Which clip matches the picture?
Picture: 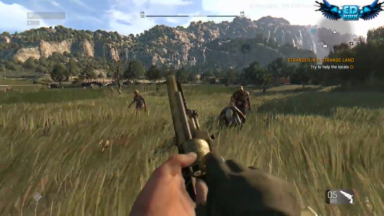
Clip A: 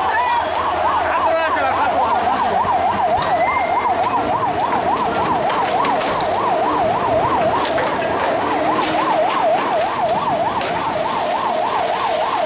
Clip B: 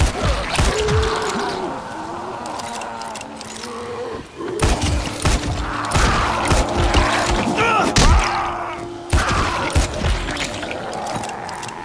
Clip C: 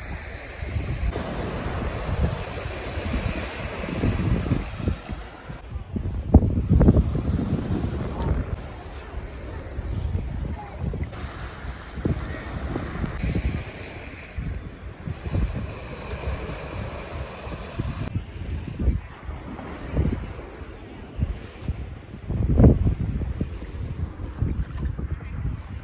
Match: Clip B